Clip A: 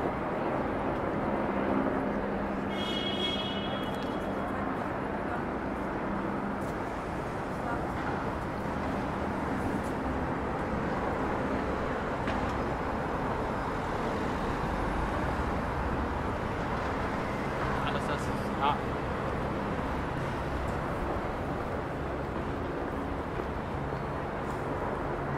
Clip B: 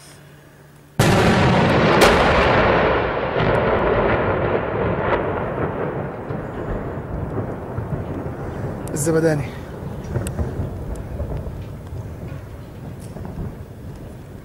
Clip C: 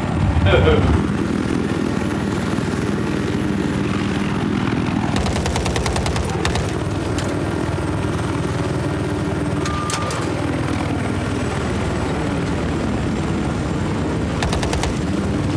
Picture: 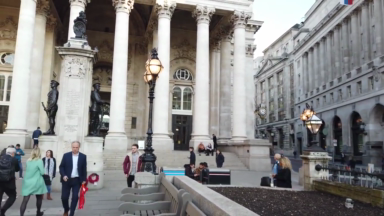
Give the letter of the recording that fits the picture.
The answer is A